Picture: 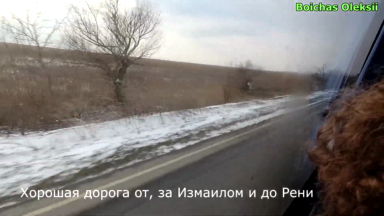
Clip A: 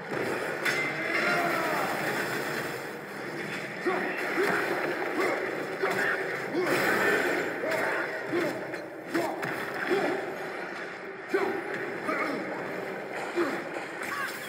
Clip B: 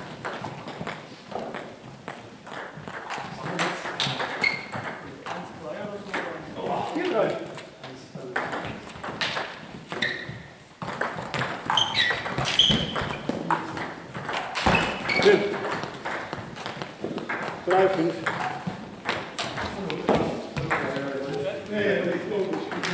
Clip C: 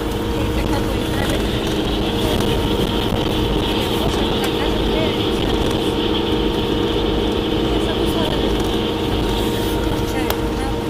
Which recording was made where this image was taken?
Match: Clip C